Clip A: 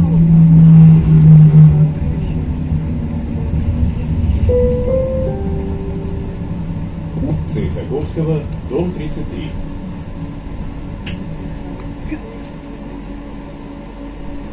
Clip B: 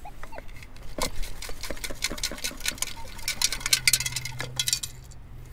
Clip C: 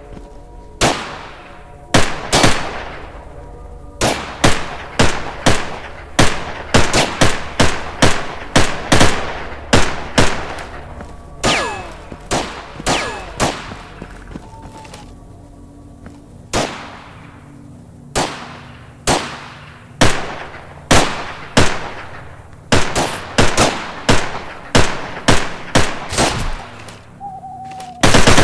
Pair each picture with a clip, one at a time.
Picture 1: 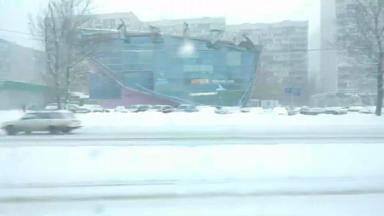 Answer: A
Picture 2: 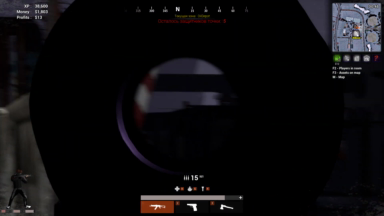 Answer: C